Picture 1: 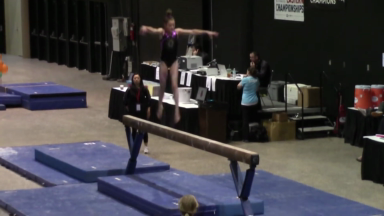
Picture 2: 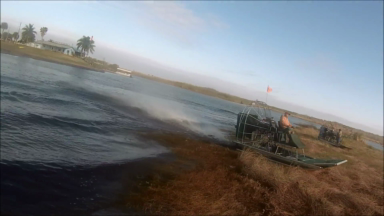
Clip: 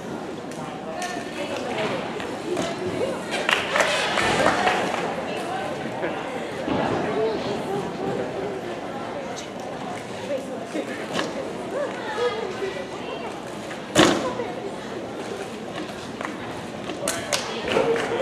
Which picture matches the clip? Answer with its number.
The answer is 1